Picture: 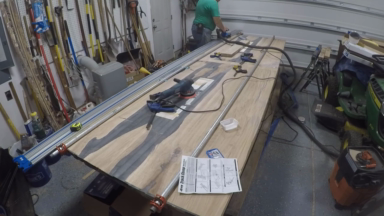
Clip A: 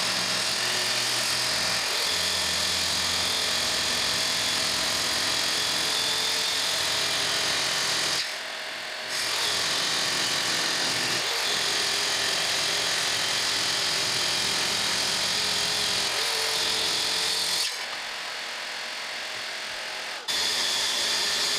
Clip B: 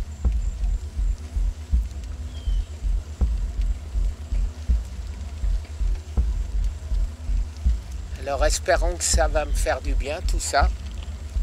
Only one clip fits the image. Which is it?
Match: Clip A